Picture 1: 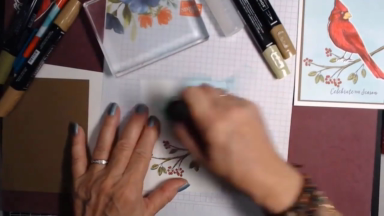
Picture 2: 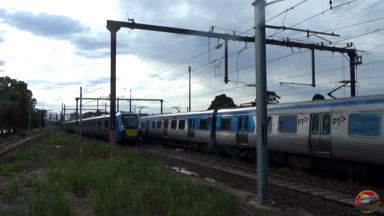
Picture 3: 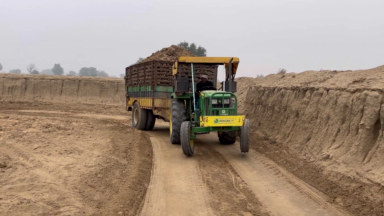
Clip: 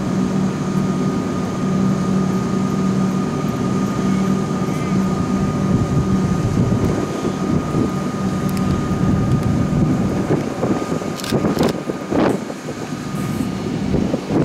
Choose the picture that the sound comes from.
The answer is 2